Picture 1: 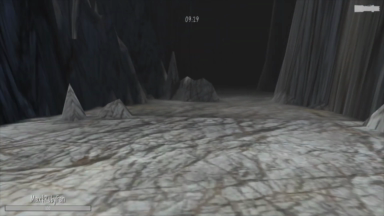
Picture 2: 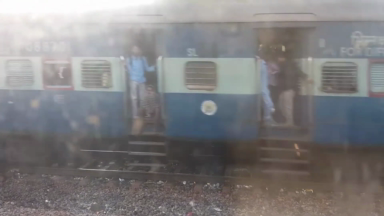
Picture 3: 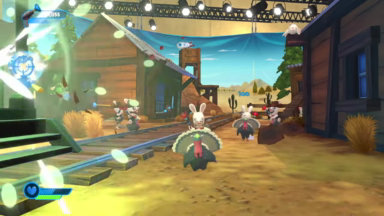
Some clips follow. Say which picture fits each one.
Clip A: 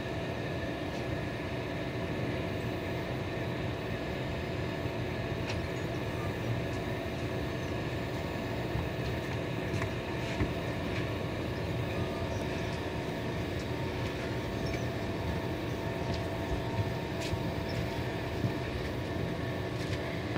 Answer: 2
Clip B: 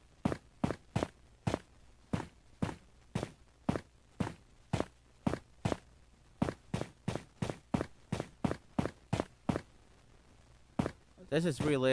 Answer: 1